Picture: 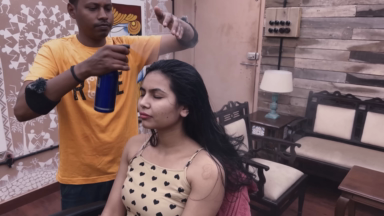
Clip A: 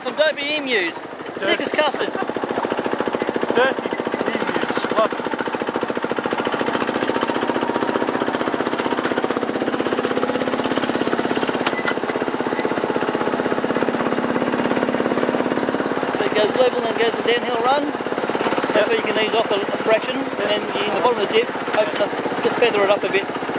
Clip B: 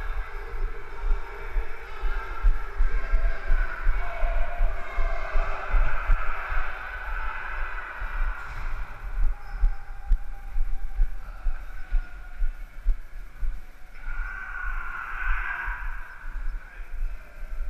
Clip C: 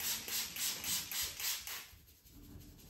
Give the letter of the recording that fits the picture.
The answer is C